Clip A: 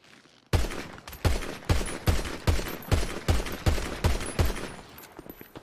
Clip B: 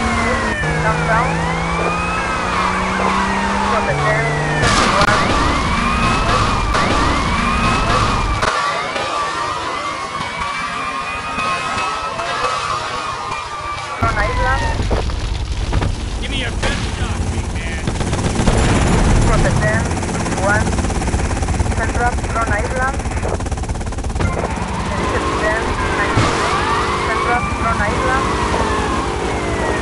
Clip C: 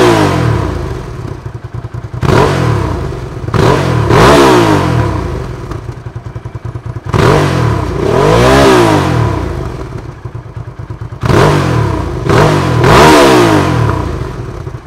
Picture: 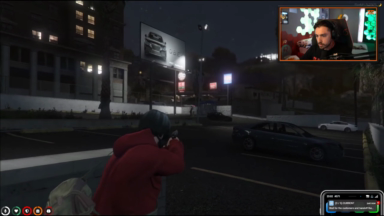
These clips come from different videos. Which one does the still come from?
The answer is A